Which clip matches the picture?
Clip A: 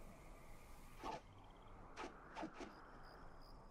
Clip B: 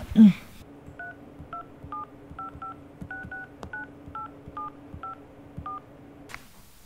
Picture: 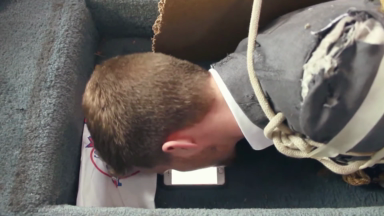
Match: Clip B